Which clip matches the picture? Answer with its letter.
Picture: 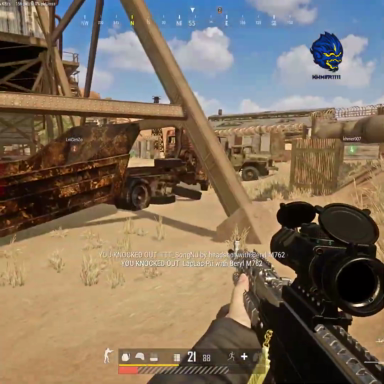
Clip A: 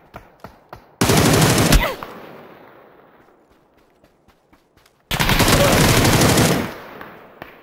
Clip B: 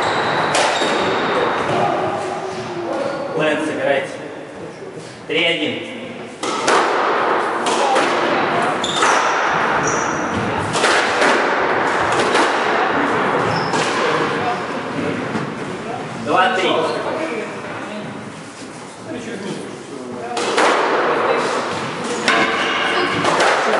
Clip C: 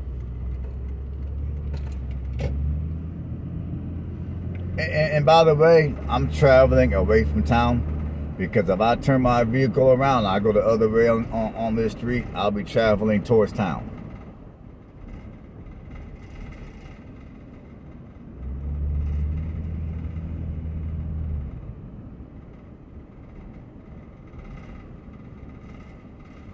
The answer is A